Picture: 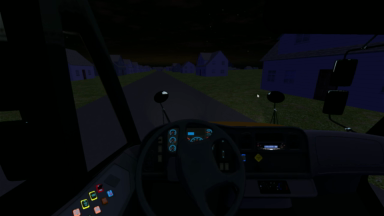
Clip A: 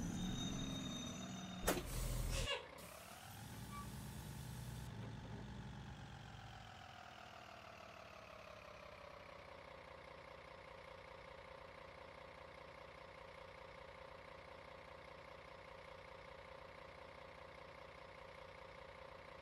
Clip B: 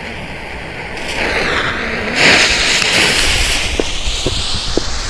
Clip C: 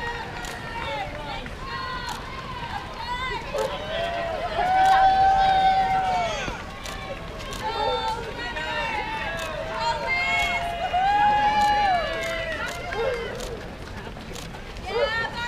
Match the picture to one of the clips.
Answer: A